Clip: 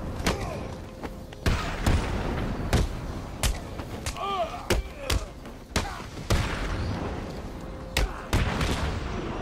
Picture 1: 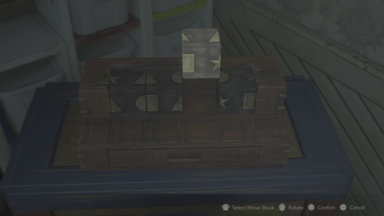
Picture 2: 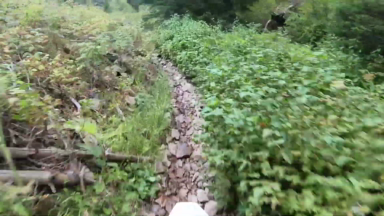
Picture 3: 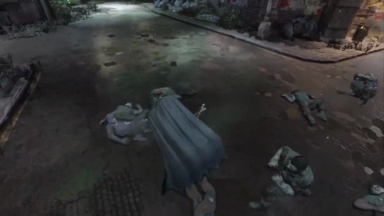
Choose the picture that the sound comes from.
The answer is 3